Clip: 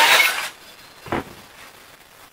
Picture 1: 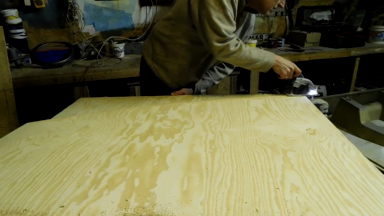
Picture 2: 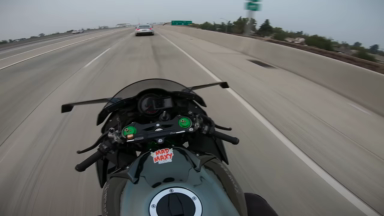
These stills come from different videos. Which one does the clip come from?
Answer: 1